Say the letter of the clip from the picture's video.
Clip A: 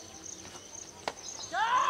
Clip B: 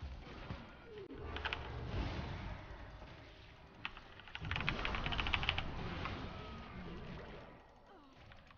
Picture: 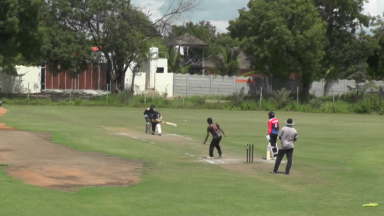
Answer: A